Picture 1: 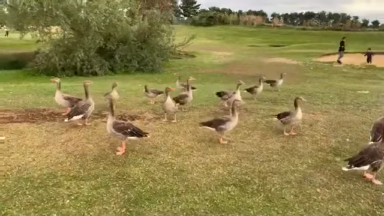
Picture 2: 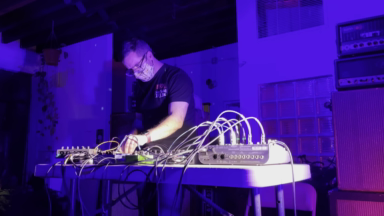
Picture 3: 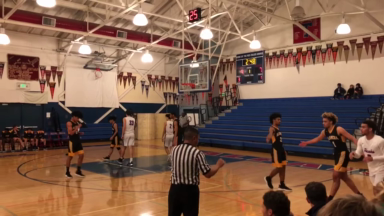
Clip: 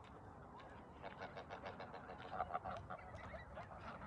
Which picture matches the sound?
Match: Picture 1